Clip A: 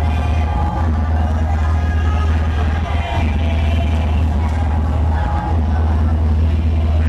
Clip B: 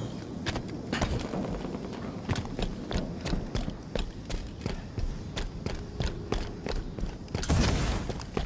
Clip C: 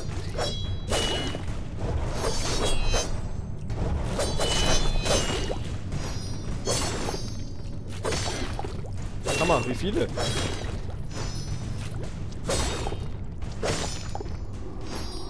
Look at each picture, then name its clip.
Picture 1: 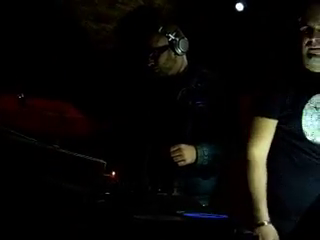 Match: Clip A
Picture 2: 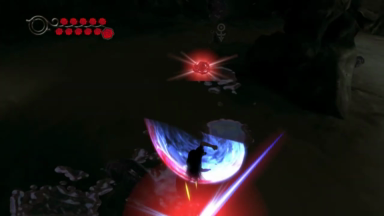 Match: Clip C